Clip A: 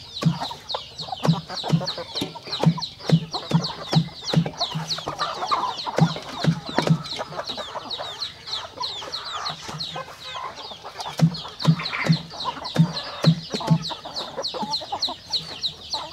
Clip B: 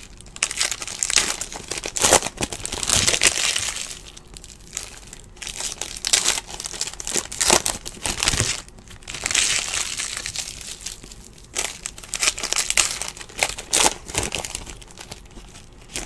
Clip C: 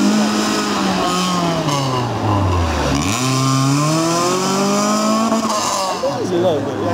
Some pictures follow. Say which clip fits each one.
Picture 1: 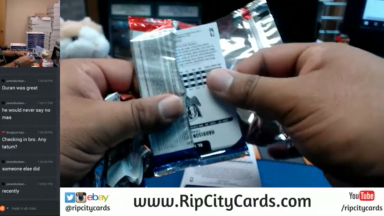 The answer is B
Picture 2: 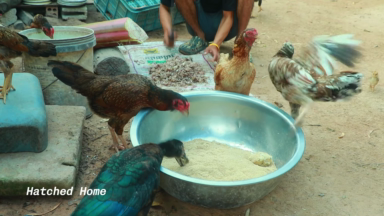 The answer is A